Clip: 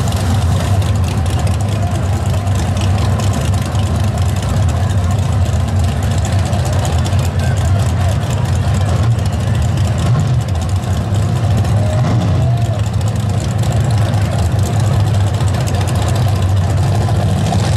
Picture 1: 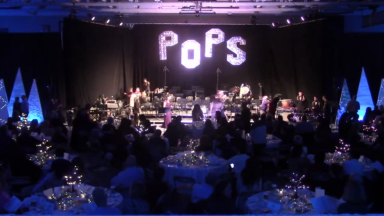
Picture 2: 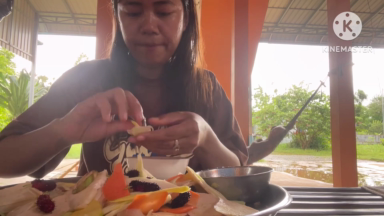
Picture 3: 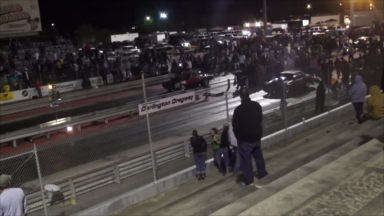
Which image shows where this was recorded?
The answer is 3